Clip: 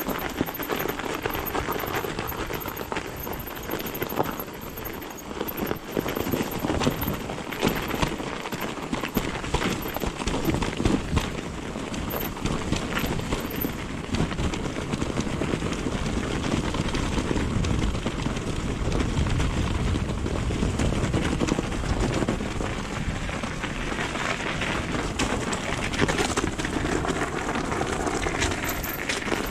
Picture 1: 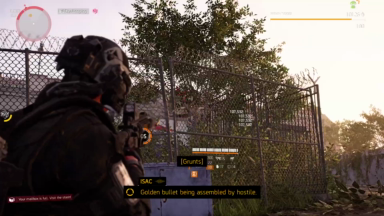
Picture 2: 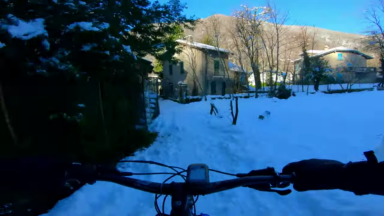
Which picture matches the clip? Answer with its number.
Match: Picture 2